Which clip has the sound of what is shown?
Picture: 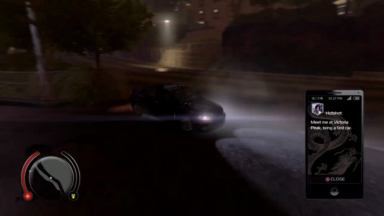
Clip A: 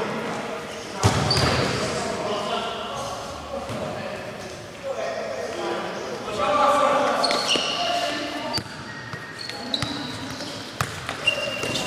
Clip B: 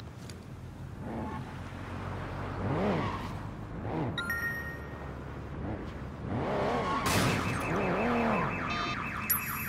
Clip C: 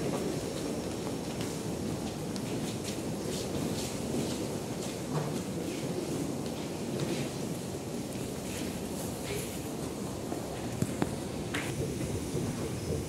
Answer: B